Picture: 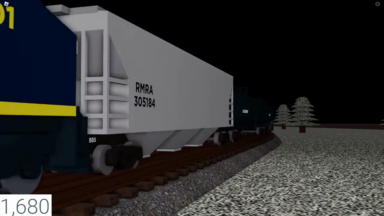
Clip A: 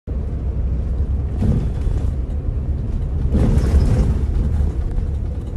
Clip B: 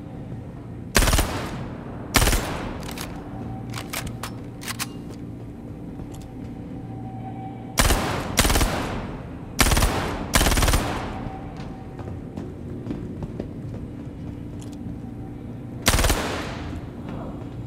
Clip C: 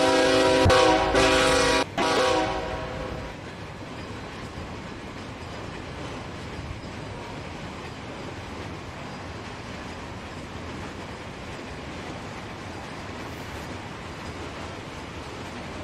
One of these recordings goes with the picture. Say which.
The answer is C